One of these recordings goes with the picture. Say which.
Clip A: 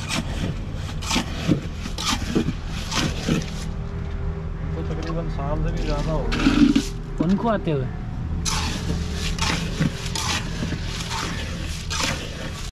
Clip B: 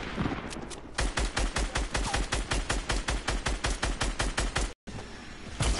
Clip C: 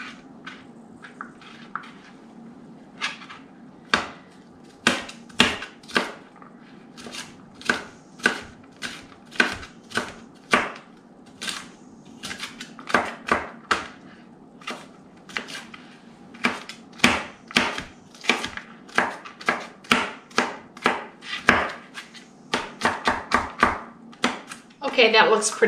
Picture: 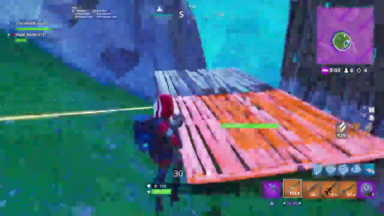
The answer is B